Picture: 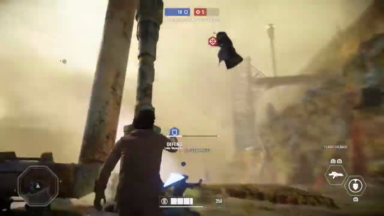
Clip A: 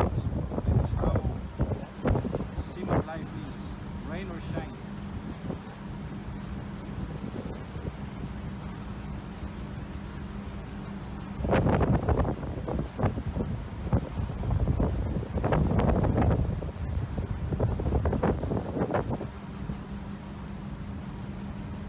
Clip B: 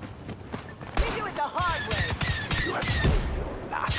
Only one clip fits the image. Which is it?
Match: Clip B